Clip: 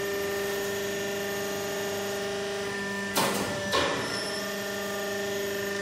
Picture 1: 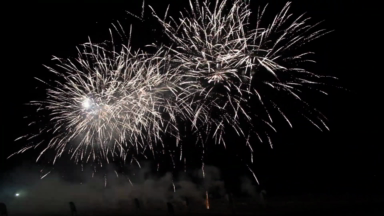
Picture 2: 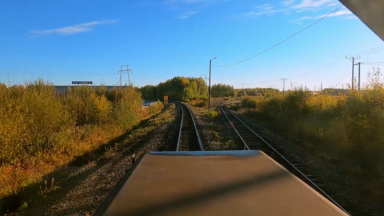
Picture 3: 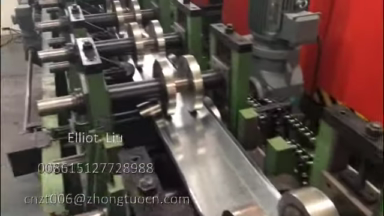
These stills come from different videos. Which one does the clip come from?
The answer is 3